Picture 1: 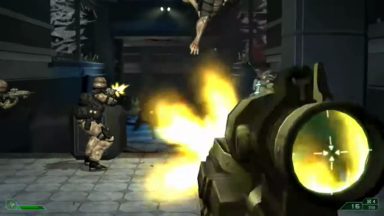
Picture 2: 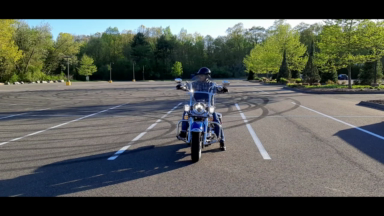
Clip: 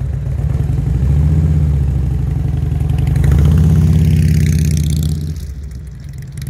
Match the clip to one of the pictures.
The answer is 2